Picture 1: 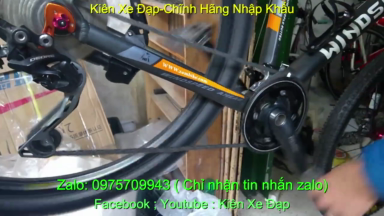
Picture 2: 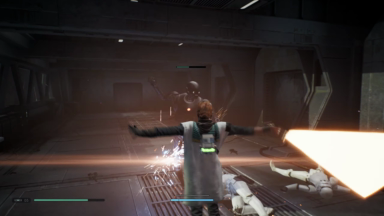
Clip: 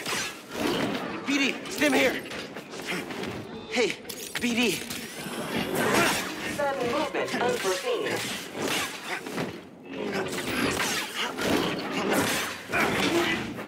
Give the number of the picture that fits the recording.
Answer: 2